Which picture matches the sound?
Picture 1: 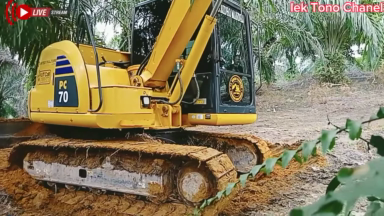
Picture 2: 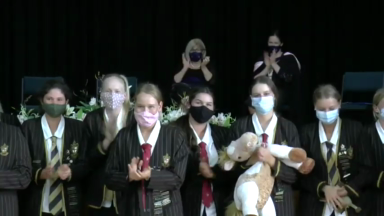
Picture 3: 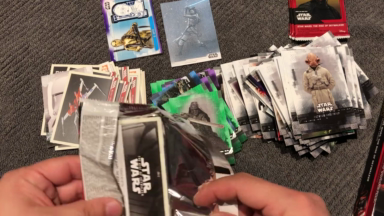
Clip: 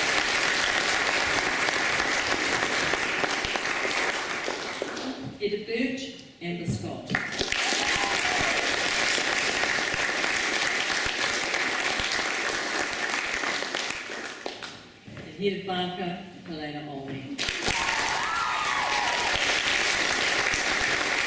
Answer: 2